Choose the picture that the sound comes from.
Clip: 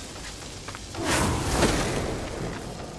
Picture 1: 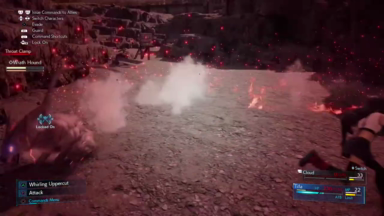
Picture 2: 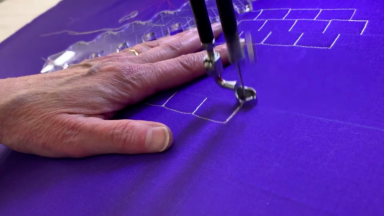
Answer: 1